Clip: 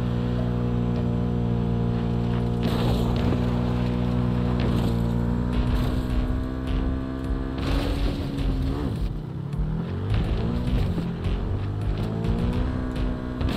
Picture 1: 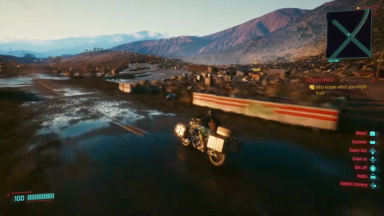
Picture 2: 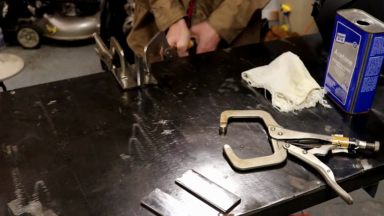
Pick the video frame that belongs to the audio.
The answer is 1